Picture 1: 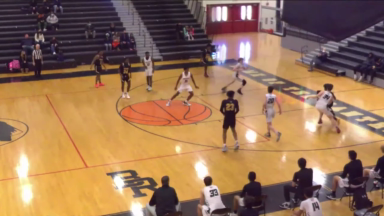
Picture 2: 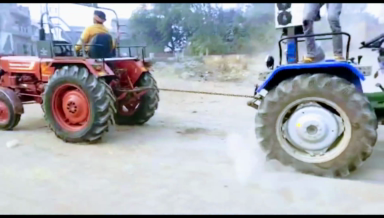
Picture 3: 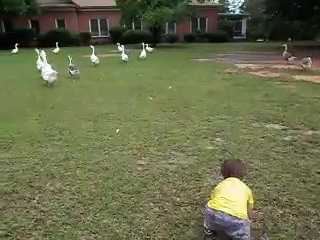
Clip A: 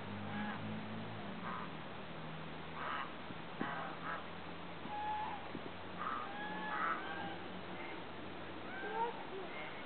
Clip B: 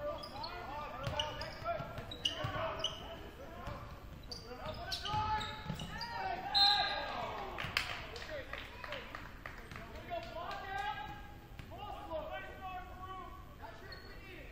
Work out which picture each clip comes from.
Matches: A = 3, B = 1